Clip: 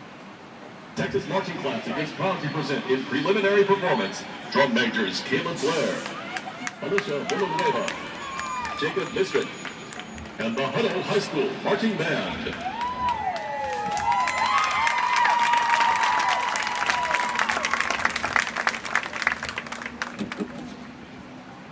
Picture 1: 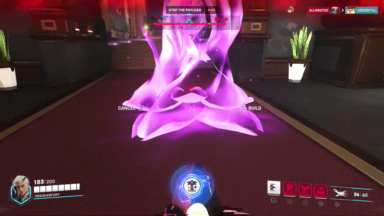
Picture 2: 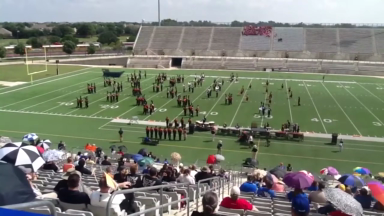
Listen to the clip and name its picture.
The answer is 2